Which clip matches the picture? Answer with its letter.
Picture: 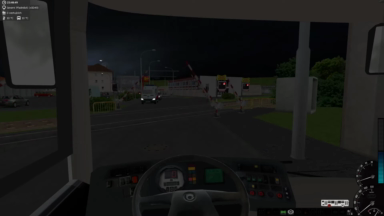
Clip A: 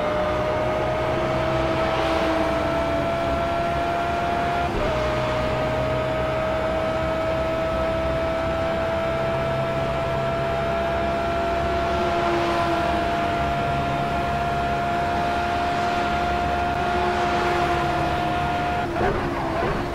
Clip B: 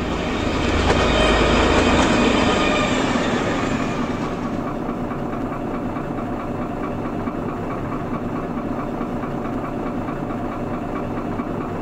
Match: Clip B